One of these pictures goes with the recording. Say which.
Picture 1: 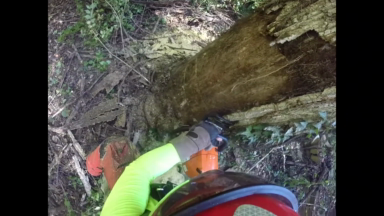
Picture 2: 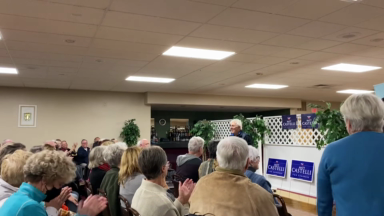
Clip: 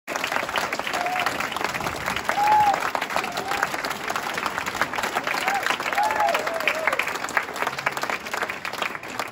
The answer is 2